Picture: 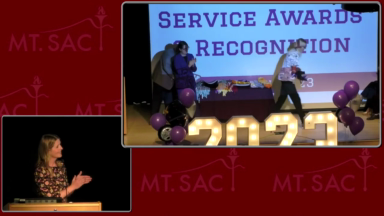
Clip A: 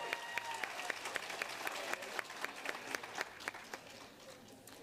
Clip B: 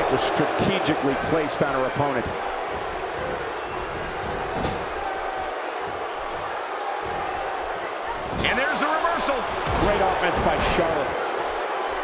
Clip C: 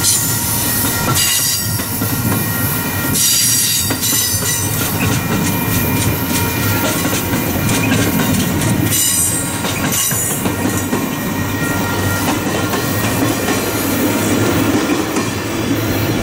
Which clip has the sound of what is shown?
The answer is A